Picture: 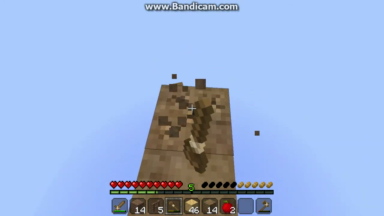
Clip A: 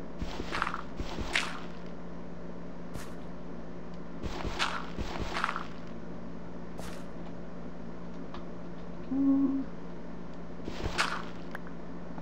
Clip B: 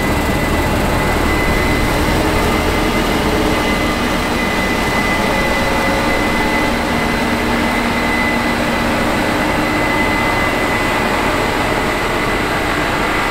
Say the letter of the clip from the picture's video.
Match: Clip A